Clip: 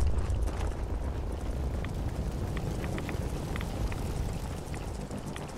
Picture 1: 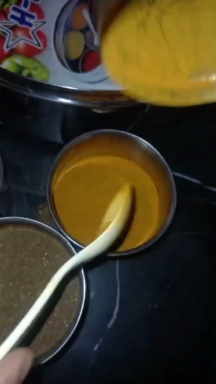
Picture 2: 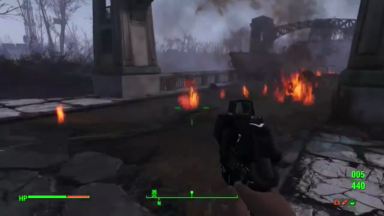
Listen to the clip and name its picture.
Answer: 2